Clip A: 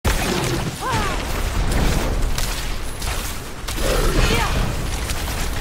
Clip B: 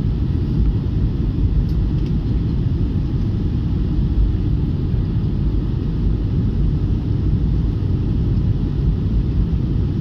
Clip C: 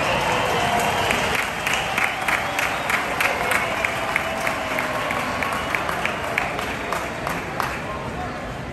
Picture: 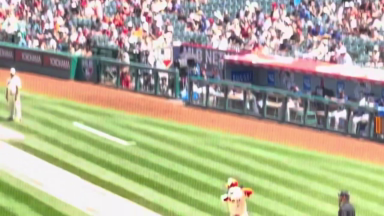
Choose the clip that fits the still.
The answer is C